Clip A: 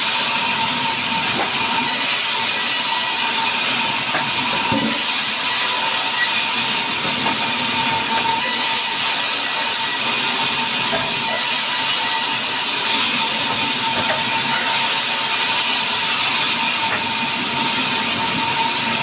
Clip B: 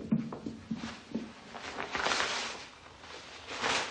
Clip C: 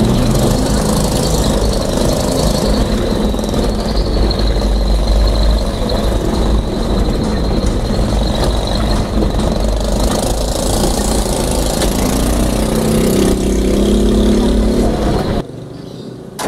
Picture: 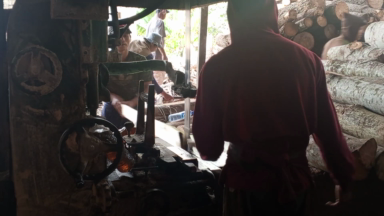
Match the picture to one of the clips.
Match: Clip A